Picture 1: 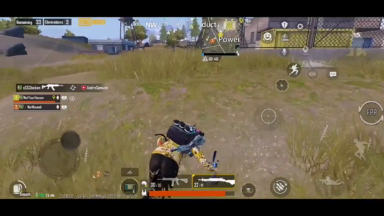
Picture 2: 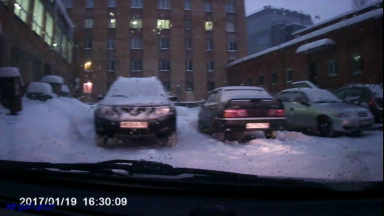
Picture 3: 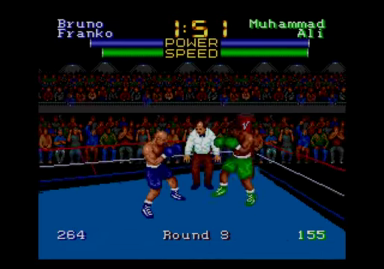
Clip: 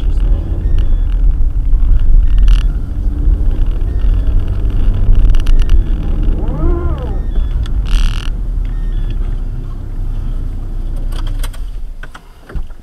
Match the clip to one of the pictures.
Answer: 2